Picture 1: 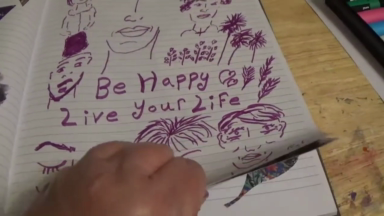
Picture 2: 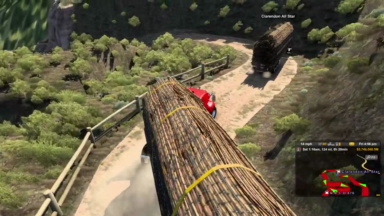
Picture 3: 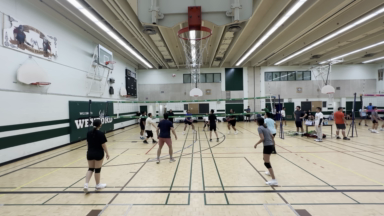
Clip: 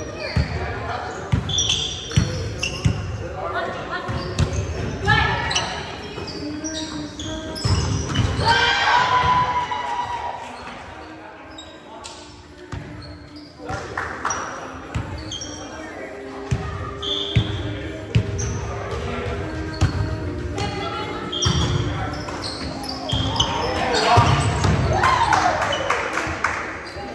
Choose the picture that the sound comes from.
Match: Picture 3